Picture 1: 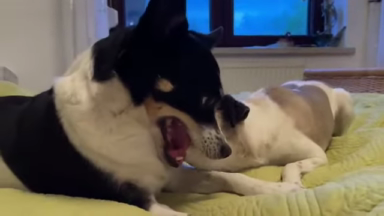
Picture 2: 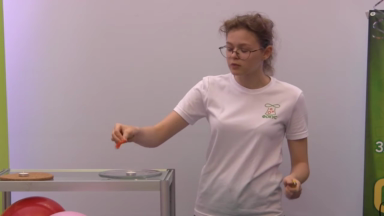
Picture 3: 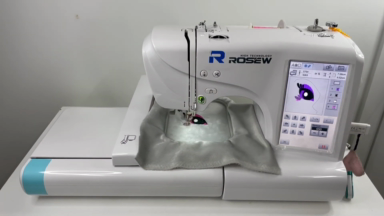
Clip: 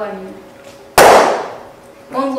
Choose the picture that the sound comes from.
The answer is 2